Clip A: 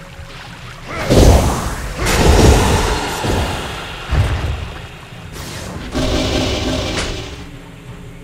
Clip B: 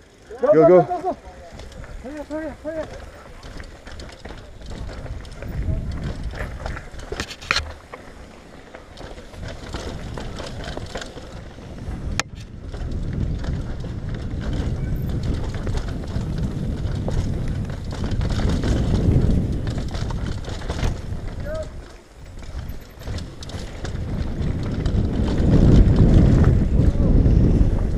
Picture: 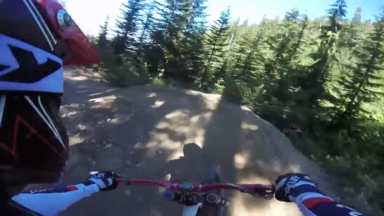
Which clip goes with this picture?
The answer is B